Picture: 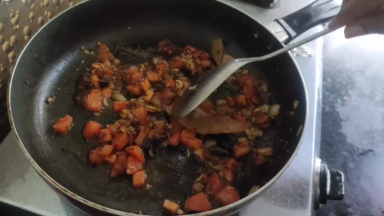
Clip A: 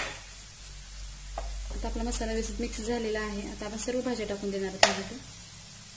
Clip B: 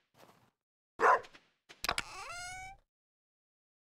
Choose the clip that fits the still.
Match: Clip A